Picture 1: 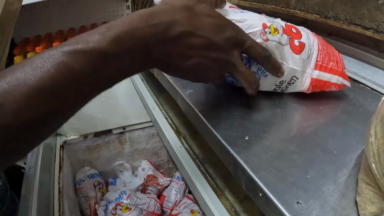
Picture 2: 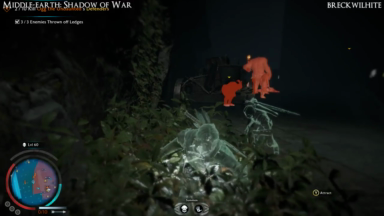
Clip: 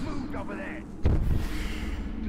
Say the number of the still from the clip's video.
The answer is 2